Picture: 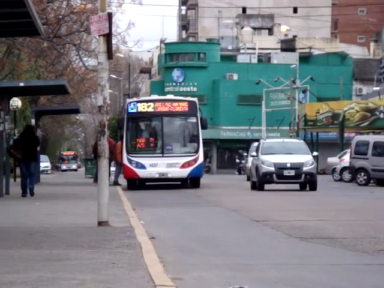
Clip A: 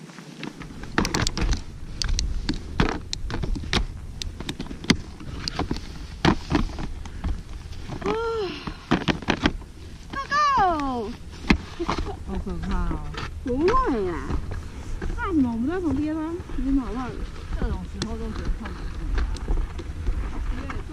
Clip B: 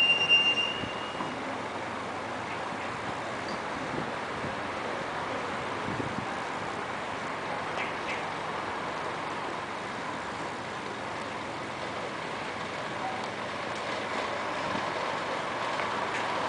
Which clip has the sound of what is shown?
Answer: B